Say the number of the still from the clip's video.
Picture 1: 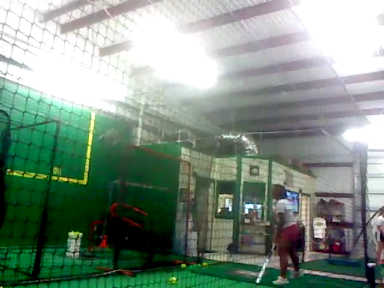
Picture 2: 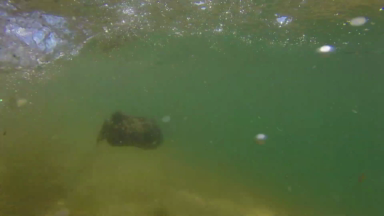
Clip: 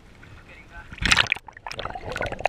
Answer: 2